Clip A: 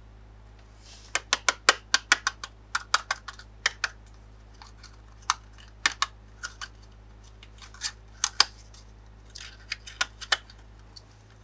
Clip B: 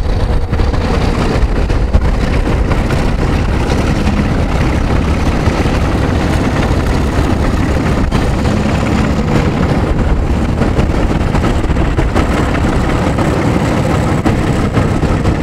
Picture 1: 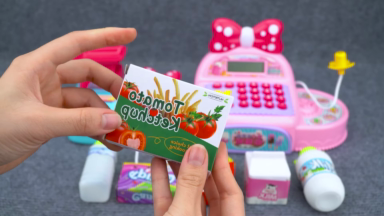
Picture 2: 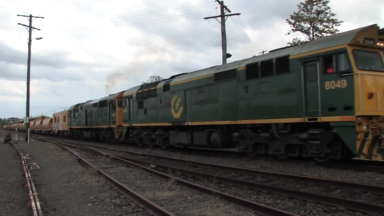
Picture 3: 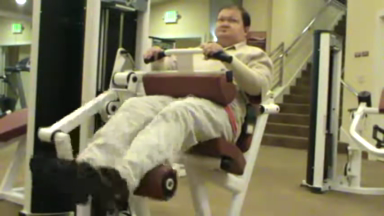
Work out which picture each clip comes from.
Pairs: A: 1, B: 2